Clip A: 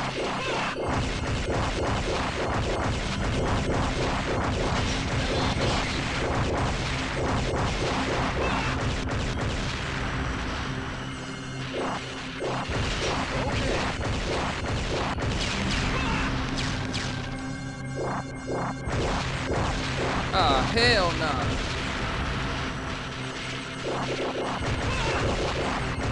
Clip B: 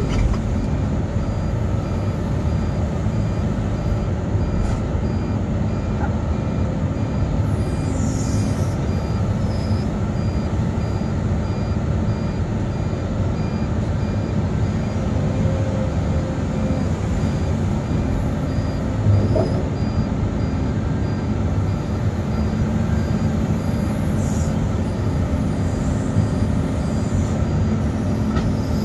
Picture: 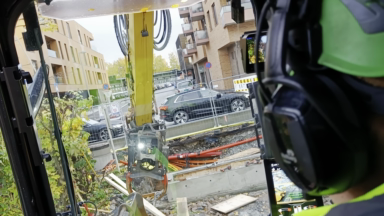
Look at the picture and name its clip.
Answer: B